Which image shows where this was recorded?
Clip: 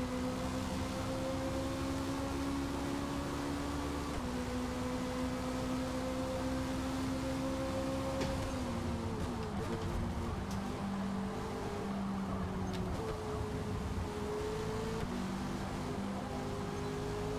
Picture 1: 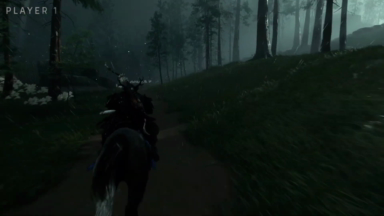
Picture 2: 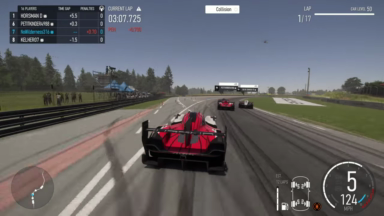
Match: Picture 2